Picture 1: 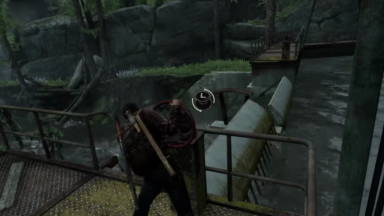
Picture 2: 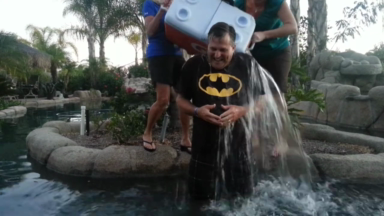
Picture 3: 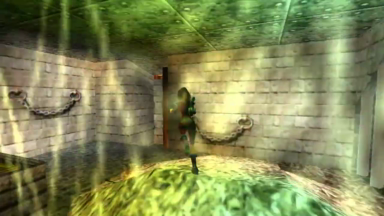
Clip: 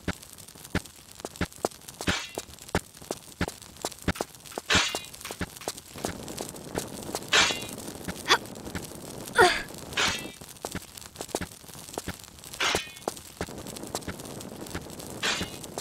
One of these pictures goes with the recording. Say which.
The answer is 3